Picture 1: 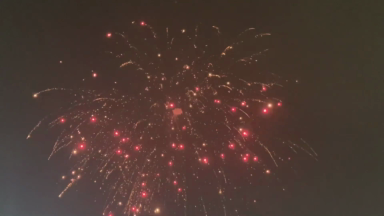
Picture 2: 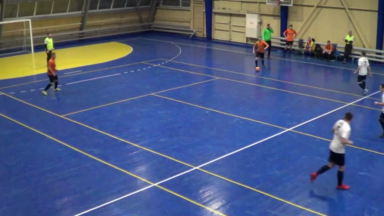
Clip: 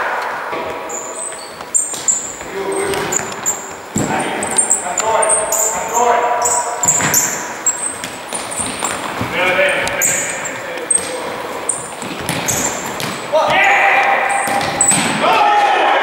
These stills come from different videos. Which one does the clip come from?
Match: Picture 2